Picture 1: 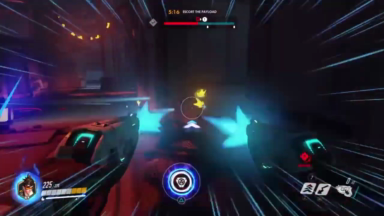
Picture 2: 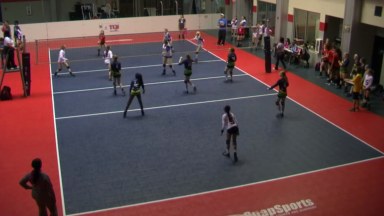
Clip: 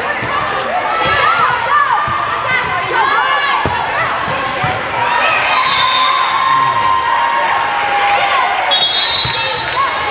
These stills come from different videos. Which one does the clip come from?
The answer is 2